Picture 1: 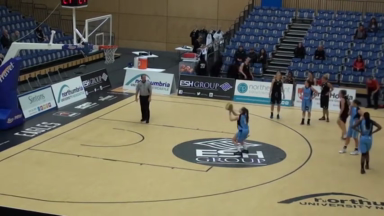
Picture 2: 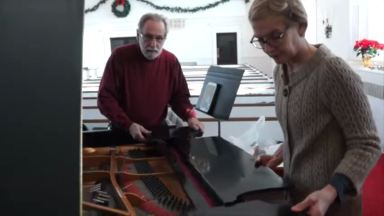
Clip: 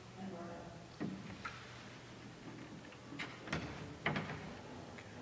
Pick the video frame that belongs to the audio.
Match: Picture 2